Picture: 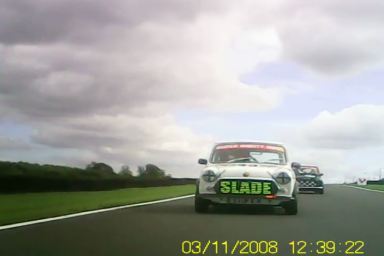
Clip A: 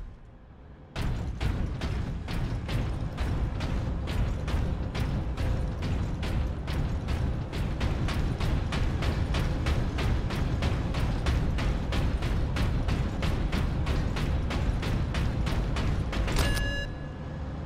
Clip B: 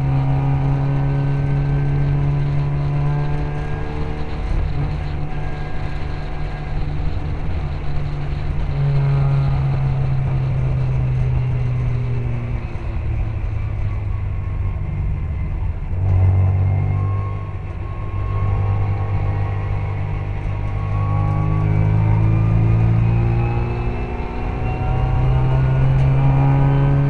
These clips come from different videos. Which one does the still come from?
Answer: B